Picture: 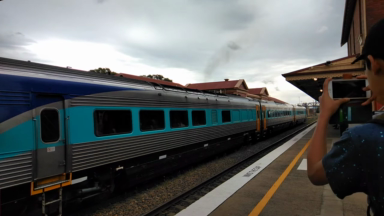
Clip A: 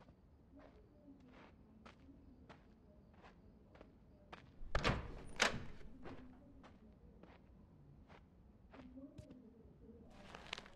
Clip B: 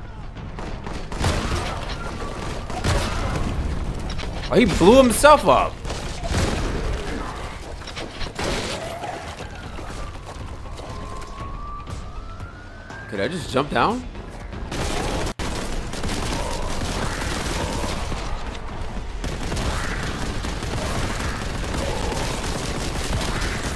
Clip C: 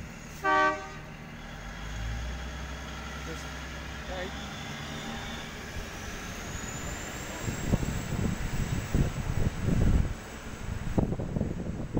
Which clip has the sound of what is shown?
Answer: C